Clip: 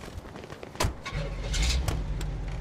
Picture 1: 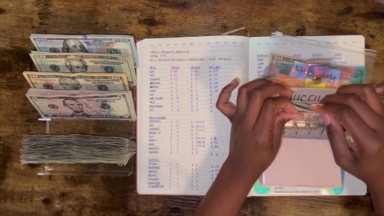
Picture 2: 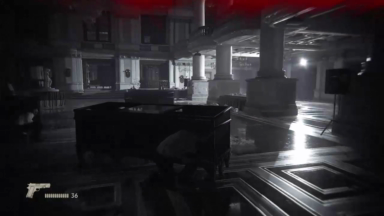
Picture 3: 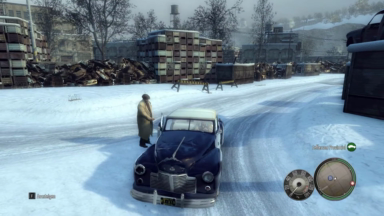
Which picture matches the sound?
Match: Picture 3